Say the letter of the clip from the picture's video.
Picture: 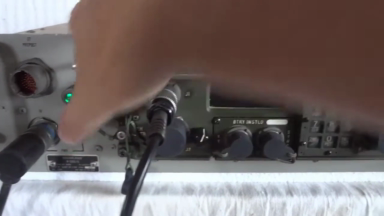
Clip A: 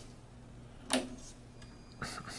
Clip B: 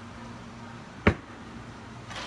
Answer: A